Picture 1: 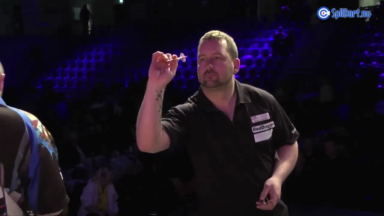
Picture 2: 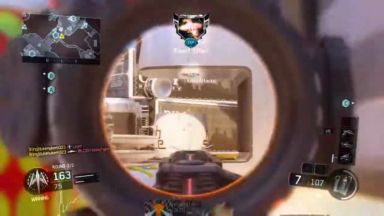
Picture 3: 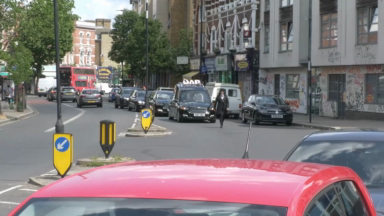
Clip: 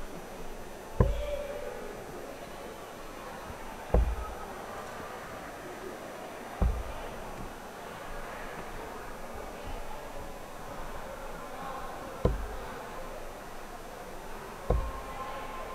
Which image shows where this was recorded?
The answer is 1